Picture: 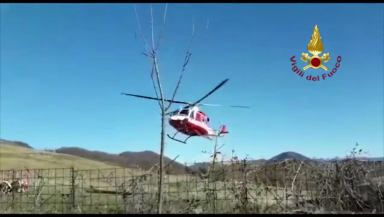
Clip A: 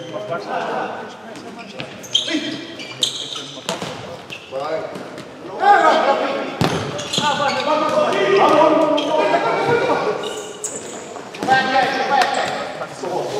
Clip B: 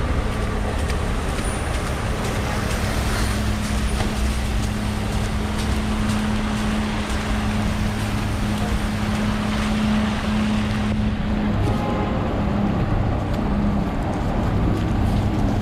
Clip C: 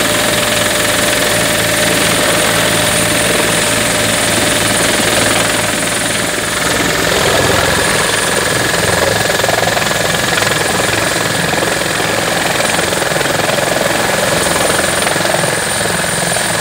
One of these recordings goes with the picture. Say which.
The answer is C